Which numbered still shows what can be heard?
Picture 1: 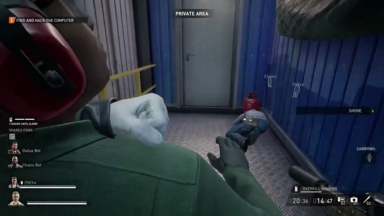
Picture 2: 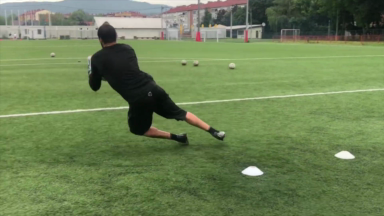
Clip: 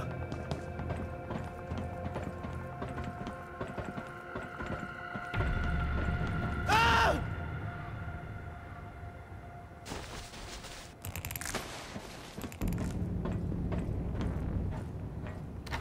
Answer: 1